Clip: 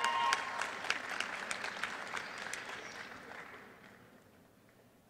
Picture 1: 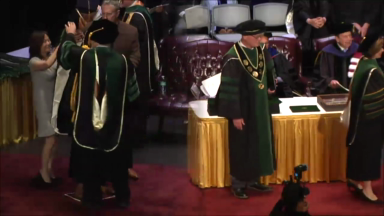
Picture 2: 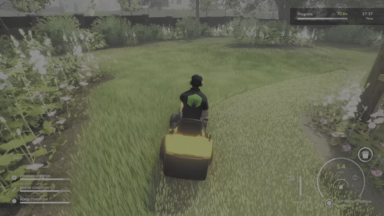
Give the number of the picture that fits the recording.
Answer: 1